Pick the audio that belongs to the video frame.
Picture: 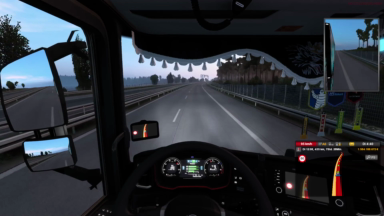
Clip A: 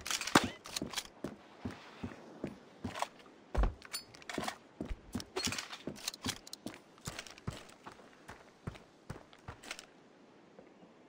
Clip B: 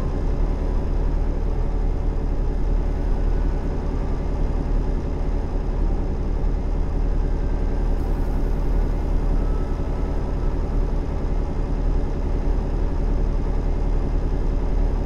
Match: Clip B